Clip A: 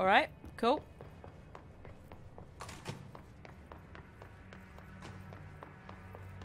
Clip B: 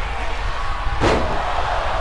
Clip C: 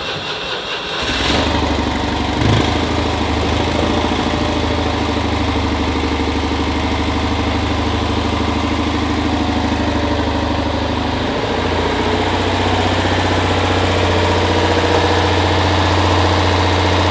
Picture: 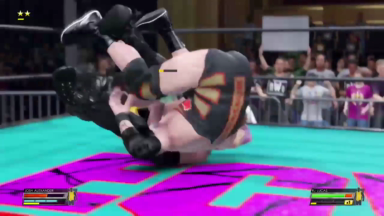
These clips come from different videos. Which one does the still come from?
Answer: B